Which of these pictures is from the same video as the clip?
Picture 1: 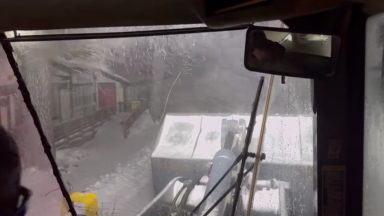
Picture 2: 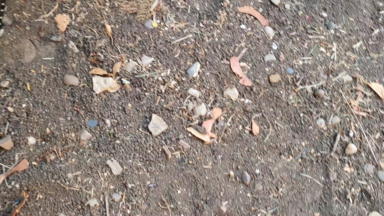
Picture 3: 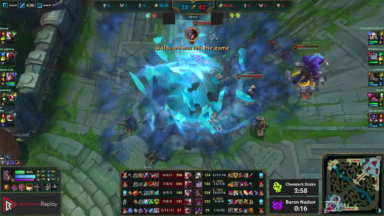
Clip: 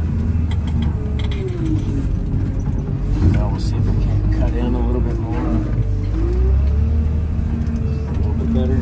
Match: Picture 1